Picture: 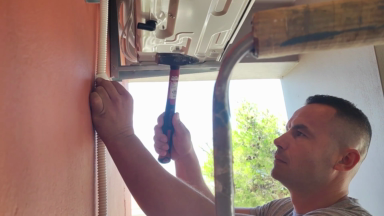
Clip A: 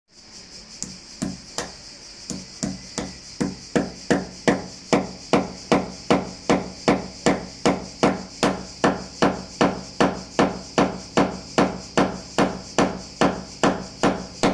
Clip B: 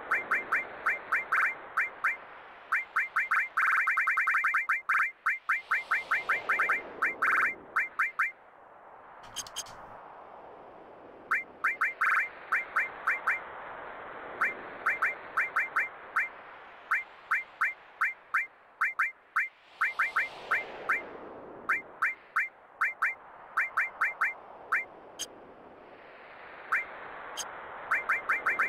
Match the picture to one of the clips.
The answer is A